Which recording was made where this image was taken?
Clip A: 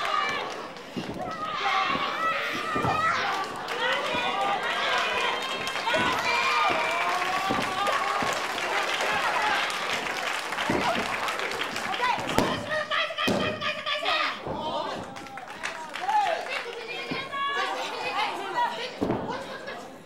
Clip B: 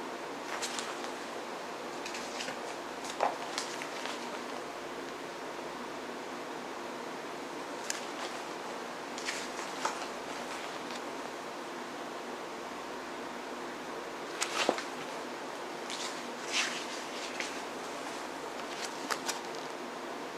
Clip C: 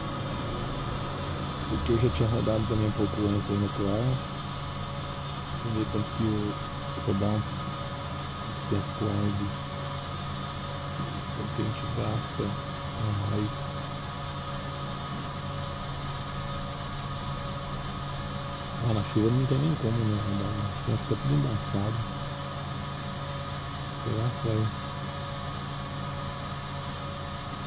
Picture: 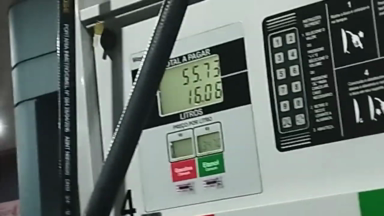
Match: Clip C